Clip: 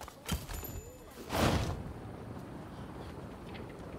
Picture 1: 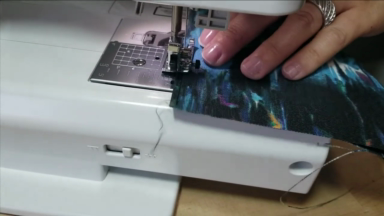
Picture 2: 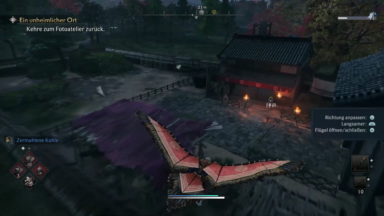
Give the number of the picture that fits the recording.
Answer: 2